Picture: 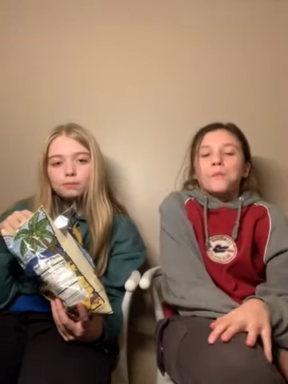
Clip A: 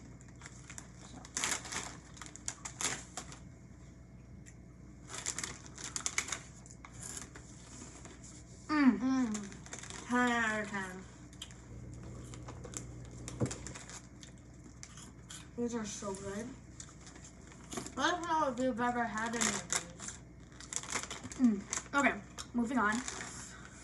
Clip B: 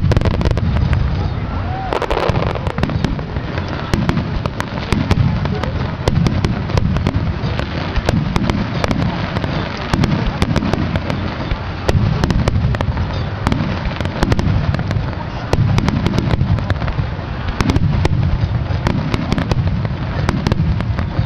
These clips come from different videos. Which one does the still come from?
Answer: A